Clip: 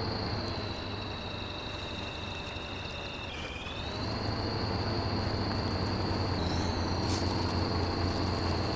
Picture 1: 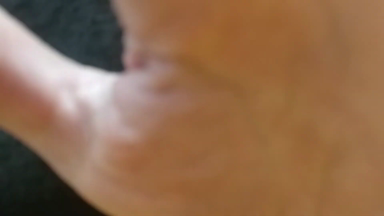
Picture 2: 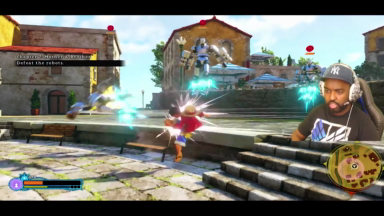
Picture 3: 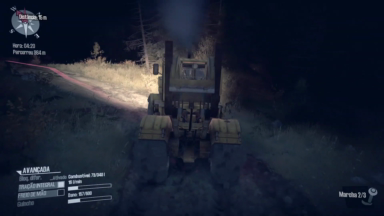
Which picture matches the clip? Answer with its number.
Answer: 3